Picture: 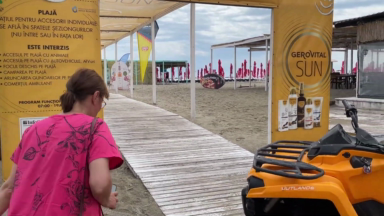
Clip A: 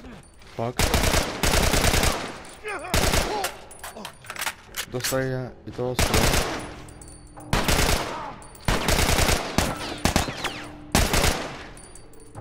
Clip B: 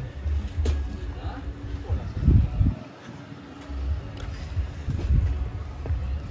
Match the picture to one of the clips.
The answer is B